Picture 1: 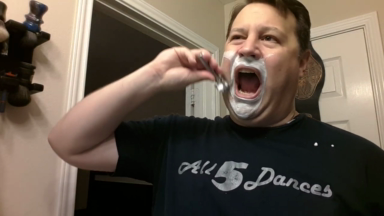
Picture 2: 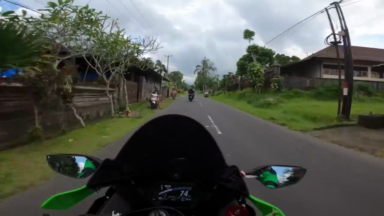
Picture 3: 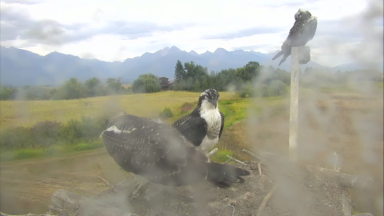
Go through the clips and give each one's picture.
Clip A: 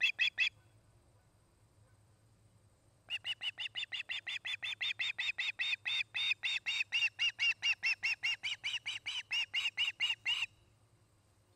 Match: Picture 3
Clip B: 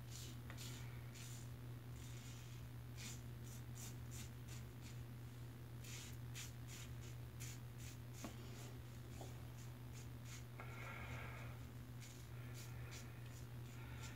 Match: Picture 1